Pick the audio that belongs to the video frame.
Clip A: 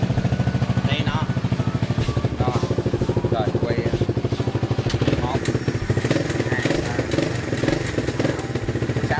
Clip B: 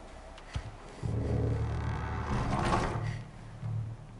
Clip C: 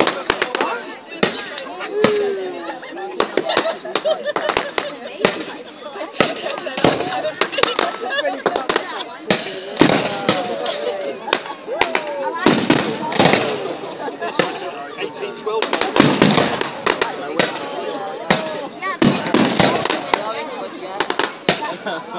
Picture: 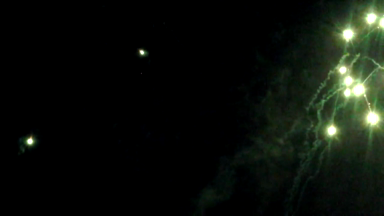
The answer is C